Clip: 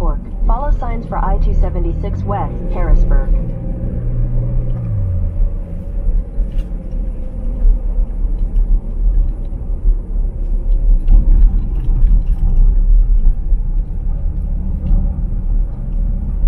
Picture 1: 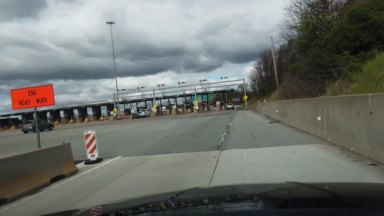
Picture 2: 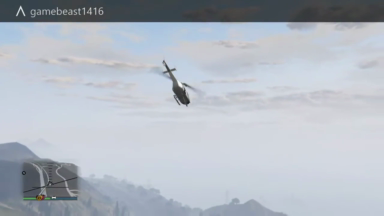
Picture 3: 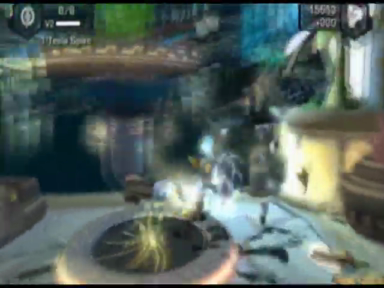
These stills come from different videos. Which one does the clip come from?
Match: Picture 1